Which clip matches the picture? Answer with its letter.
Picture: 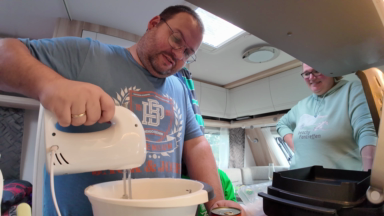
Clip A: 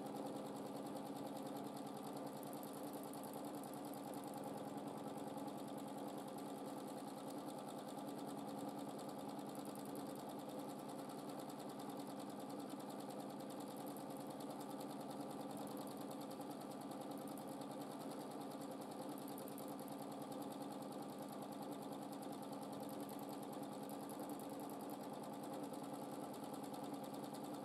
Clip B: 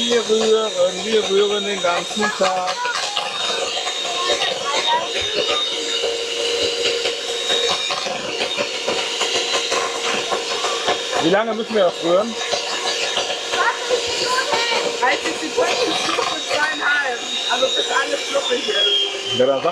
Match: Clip B